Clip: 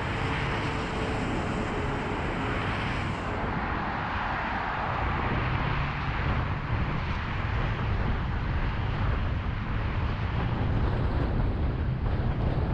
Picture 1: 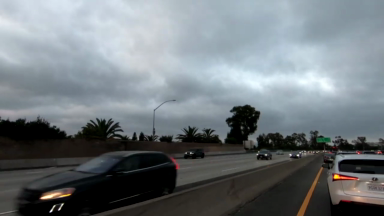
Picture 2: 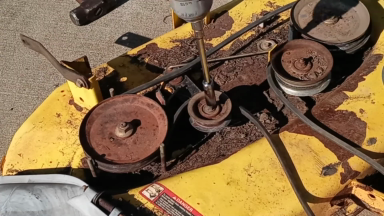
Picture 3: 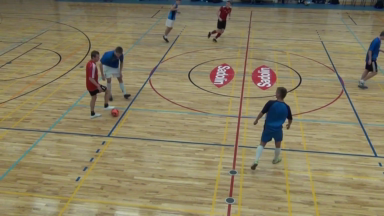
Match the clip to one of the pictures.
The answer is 1